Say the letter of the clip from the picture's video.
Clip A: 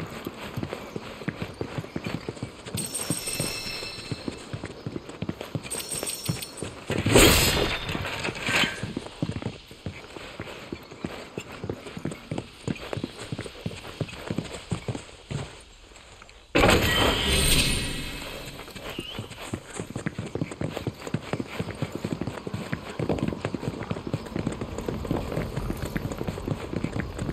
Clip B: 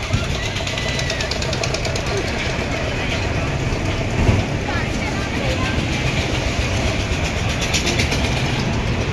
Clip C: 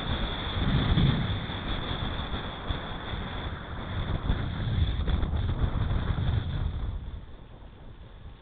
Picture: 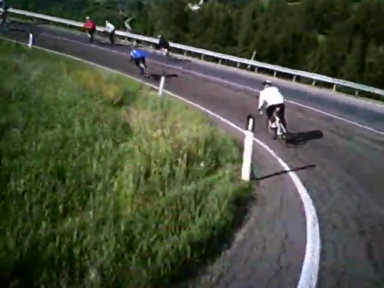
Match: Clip C